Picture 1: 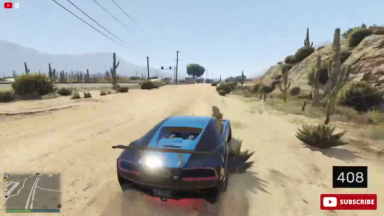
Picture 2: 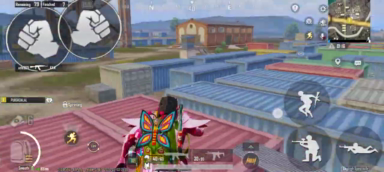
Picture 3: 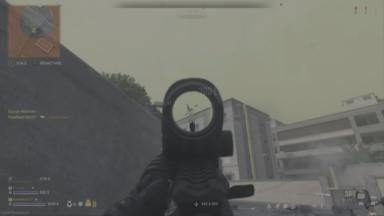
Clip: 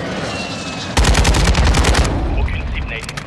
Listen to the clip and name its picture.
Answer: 3